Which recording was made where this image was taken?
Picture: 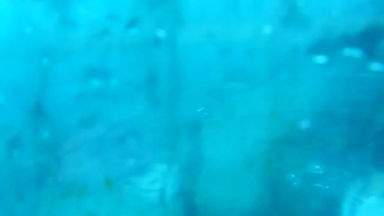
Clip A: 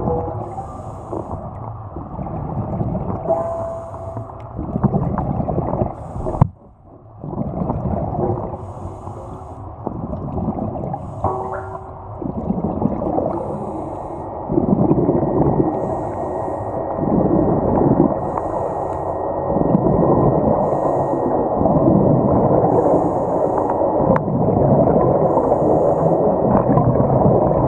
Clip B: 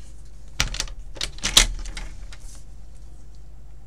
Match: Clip A